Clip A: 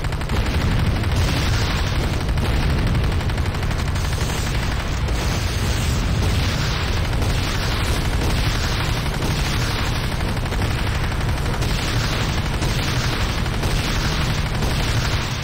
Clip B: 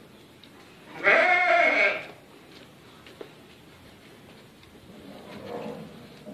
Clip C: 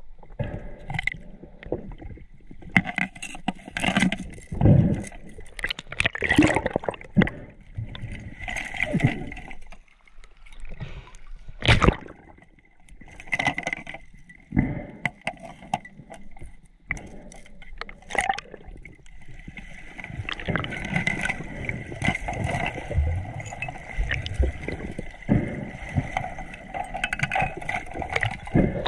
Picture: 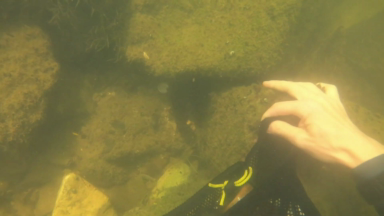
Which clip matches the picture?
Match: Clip C